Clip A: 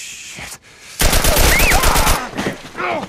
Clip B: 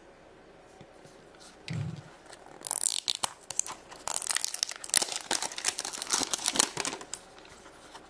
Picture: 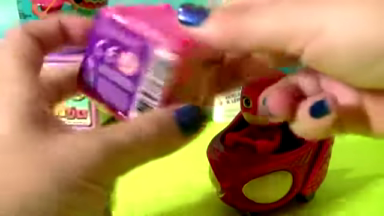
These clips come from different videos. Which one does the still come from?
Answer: B